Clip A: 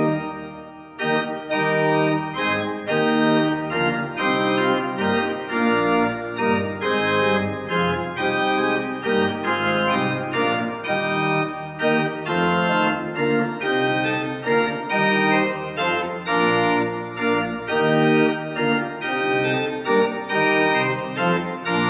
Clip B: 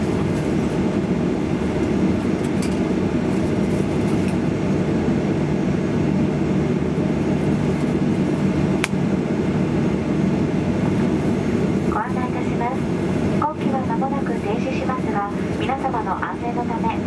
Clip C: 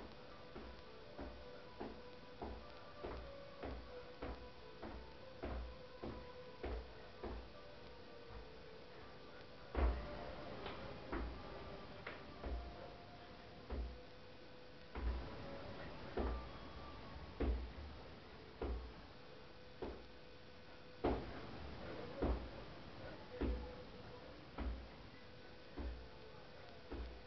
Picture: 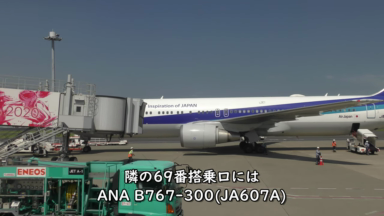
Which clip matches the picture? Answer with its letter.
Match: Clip B